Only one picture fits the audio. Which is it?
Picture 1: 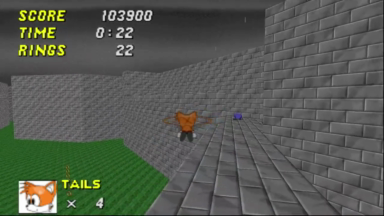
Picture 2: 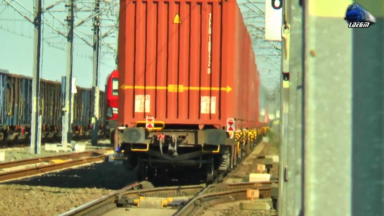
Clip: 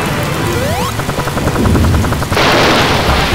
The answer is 1